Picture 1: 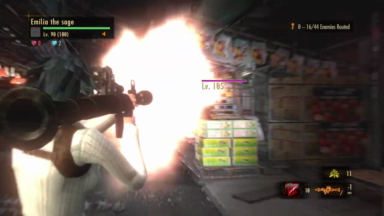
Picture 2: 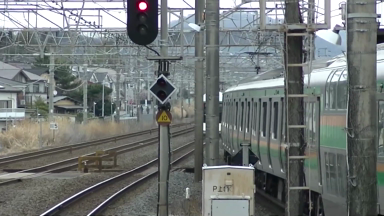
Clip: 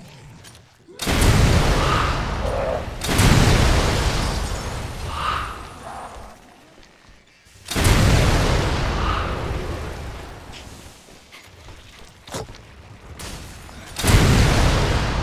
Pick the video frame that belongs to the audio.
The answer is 1